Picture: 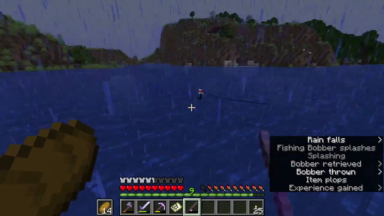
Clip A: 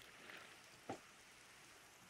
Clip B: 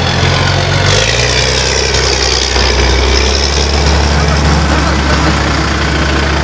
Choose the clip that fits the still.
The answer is A